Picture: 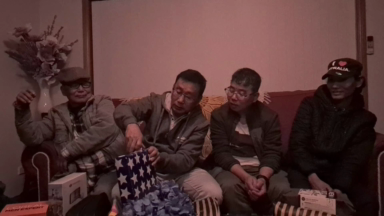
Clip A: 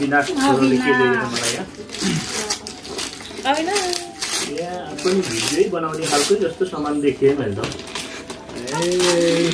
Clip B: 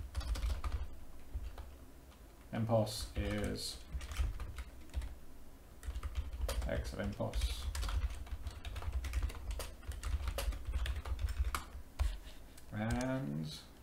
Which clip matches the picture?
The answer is A